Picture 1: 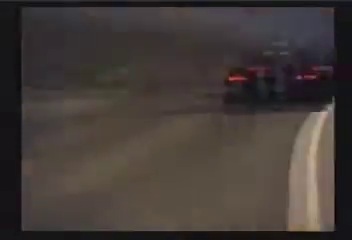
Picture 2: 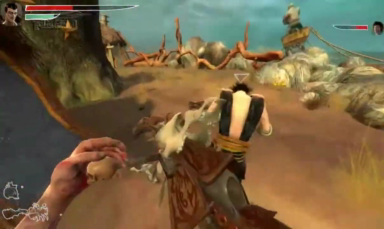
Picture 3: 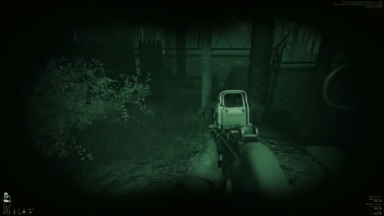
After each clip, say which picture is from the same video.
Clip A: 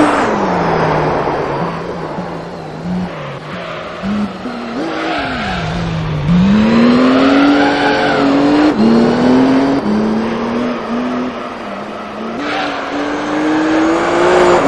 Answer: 1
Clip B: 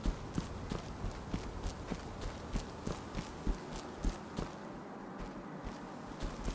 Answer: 3